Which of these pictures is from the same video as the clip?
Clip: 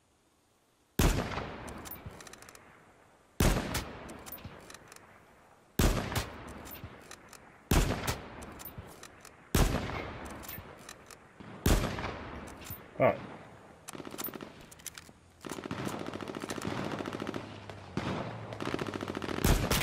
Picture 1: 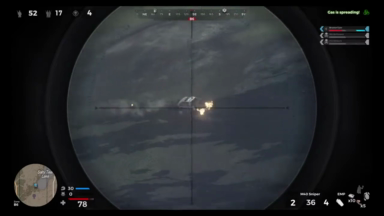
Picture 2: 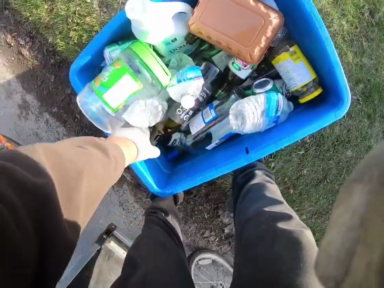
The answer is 1